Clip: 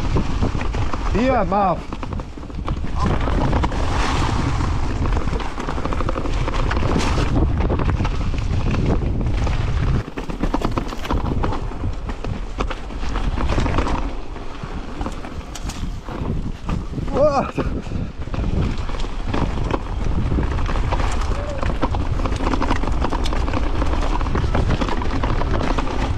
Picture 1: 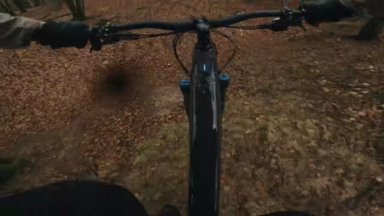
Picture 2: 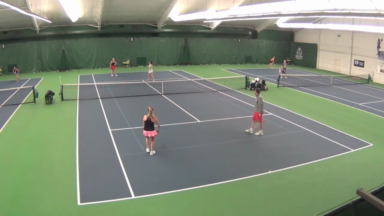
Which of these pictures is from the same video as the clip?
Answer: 1